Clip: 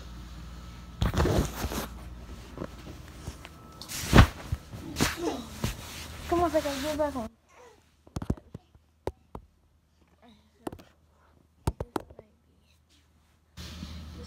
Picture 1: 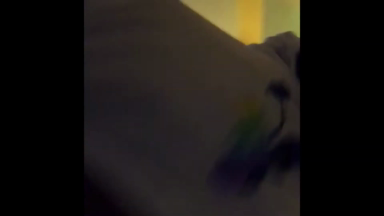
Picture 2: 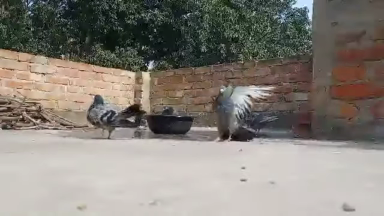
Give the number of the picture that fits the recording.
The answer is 1